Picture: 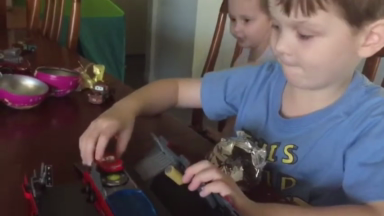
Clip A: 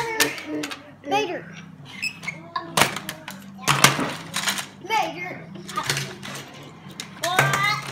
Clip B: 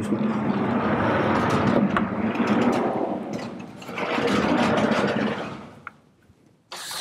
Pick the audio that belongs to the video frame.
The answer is A